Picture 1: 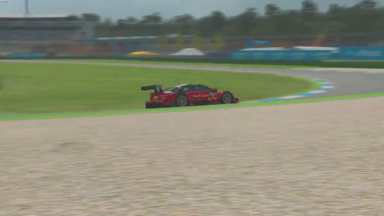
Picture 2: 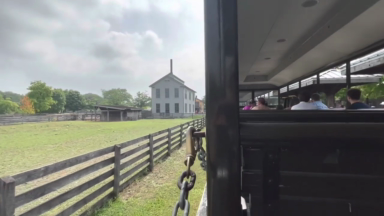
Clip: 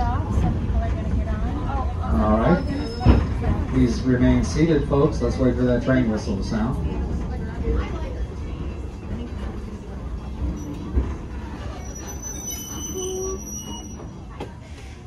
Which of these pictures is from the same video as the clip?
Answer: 2